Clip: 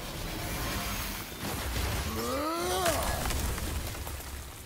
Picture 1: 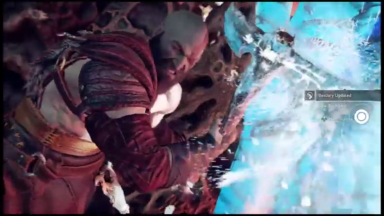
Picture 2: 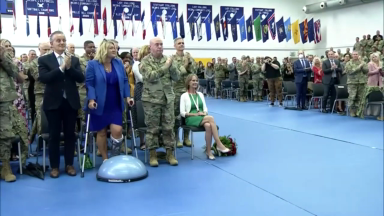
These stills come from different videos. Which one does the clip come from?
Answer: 1